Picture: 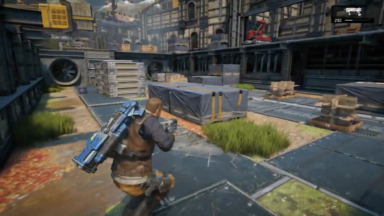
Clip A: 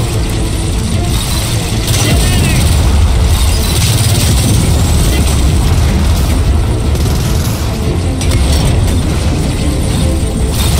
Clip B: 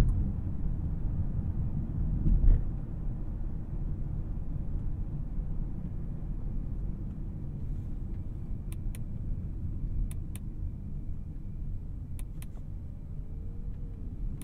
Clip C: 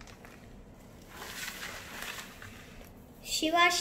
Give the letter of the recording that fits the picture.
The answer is A